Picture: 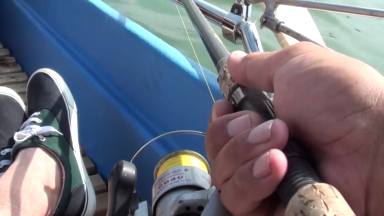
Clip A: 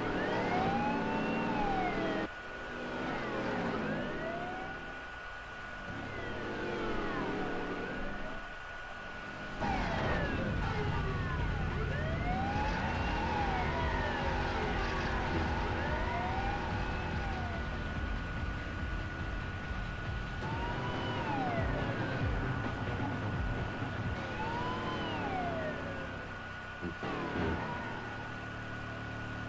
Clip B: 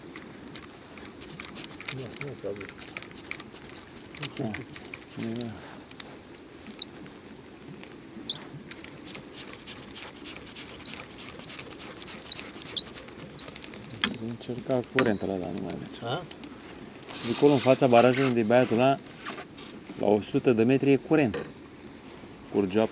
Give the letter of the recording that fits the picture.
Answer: B